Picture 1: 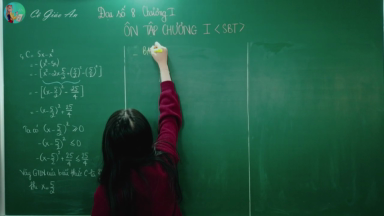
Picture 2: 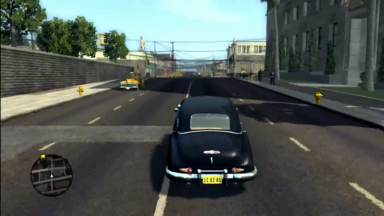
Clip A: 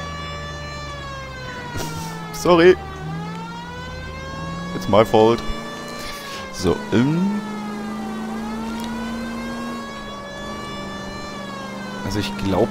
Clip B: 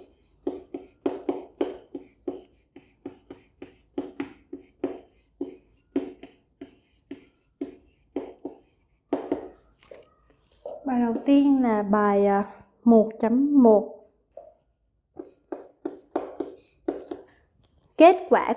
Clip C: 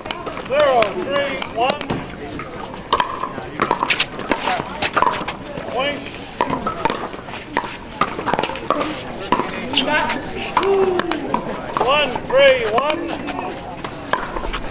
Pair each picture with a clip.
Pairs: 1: B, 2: A